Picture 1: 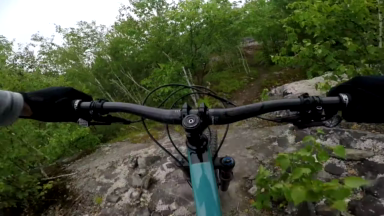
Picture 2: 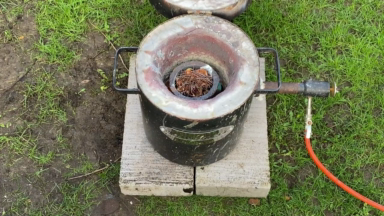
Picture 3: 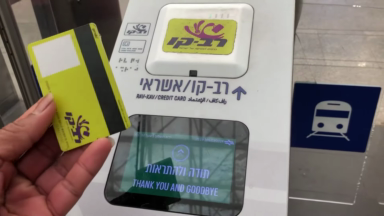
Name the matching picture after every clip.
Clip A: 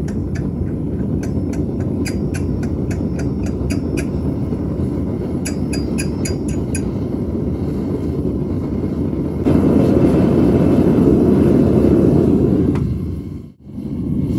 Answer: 2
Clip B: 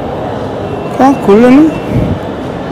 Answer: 3